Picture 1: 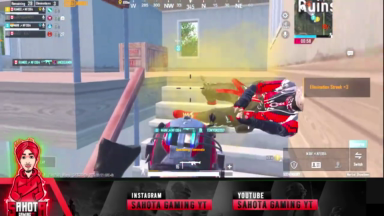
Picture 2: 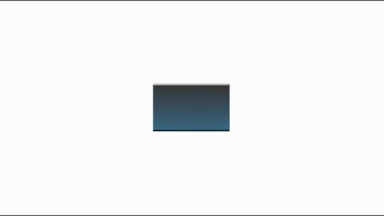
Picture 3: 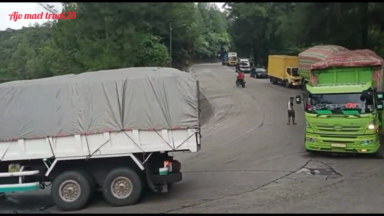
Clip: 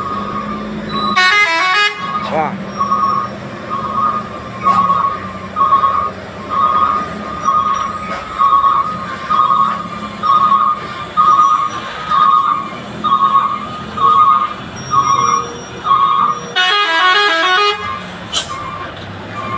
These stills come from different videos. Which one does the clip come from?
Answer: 3